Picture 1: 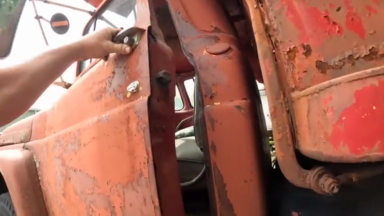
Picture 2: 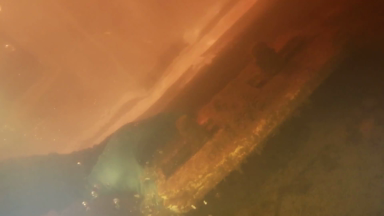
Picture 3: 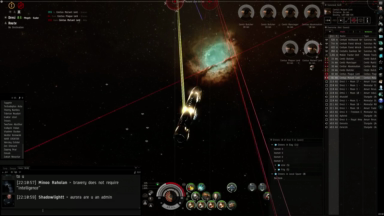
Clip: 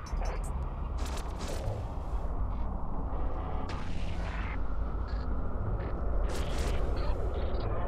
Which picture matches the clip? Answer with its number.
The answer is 3